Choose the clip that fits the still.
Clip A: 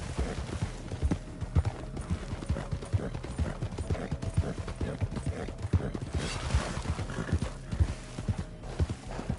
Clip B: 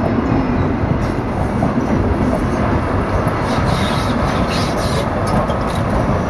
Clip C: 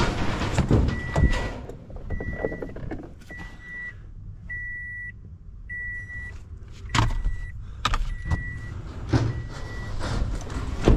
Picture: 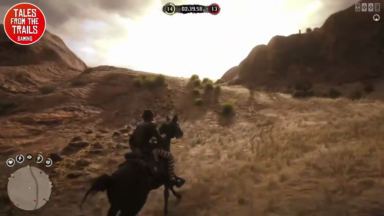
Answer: A